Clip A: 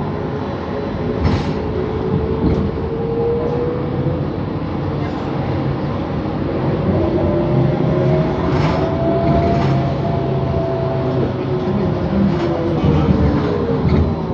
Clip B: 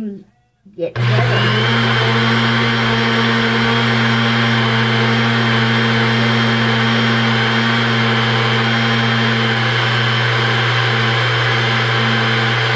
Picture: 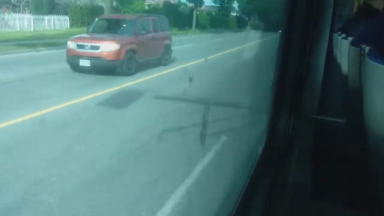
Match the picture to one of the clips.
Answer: A